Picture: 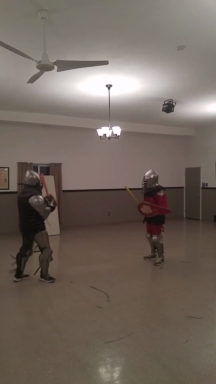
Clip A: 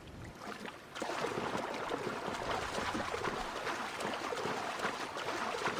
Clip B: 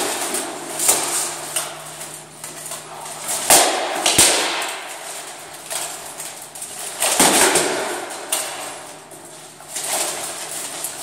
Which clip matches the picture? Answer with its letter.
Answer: B